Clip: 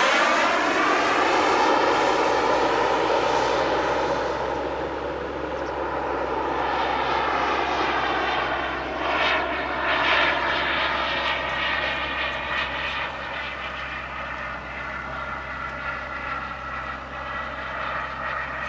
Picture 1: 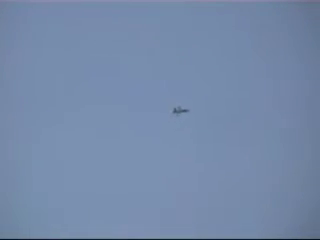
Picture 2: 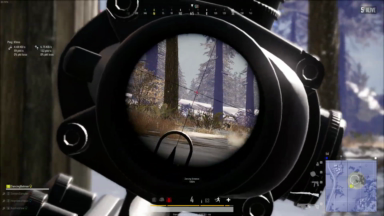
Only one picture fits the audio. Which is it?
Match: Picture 1